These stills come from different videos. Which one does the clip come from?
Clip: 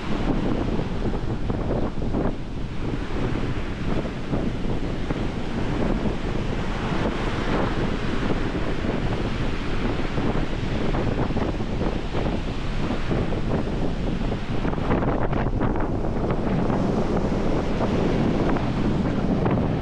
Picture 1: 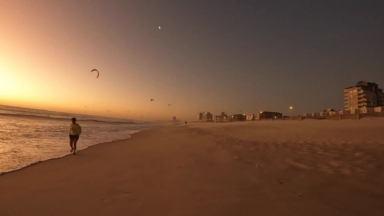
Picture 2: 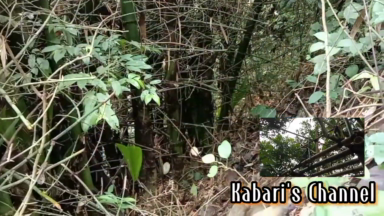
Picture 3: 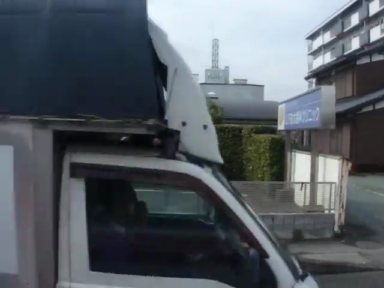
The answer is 1